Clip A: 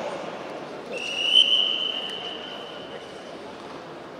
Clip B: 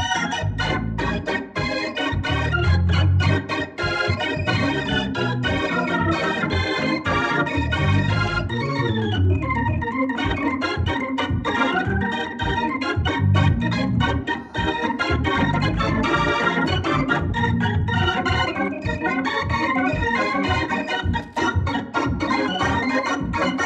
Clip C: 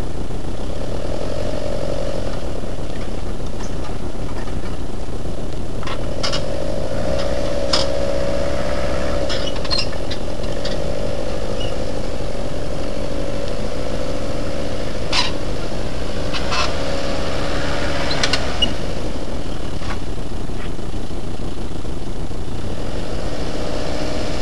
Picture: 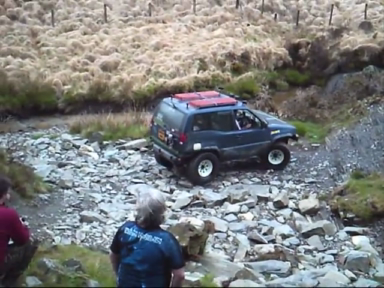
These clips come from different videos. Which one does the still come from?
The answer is C